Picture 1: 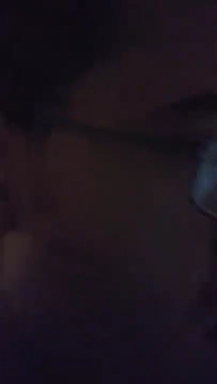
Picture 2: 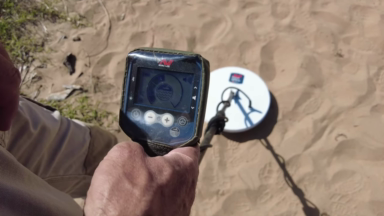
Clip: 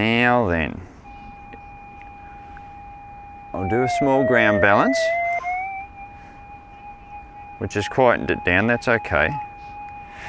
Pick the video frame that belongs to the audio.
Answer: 2